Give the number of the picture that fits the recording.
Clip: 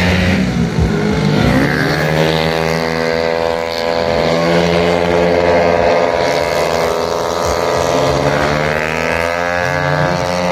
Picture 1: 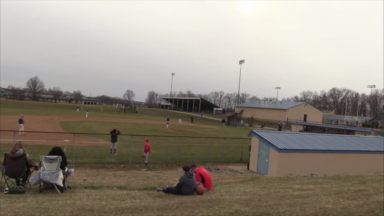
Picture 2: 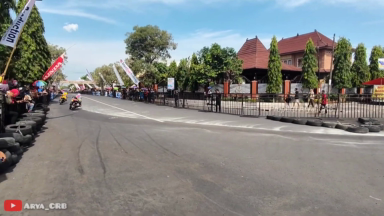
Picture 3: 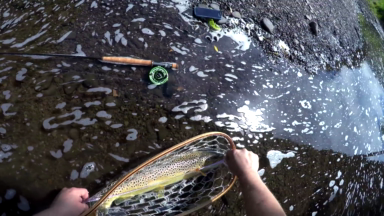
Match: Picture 2